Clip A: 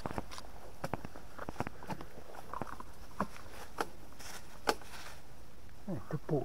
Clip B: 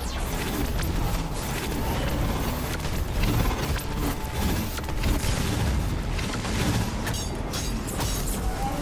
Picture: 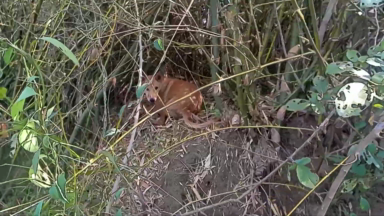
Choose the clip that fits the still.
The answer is A